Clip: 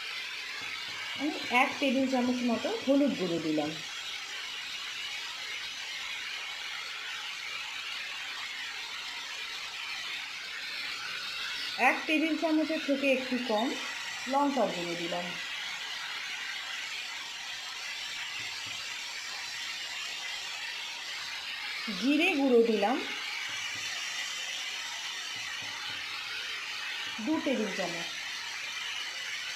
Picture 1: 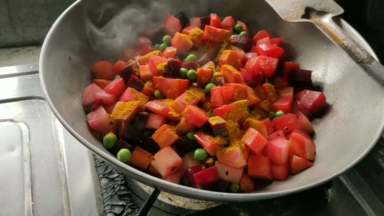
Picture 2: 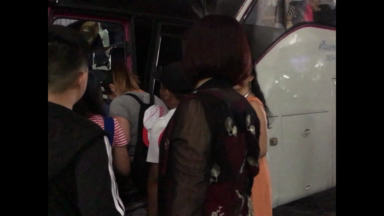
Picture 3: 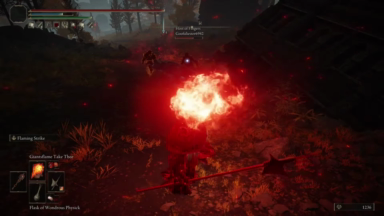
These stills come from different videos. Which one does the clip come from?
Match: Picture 1